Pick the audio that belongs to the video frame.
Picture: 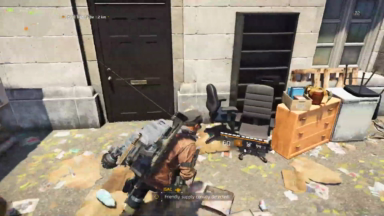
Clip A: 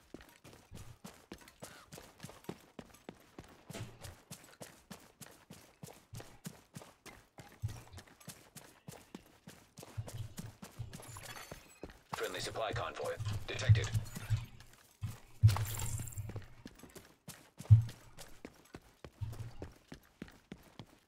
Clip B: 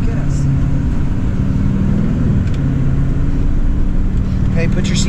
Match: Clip A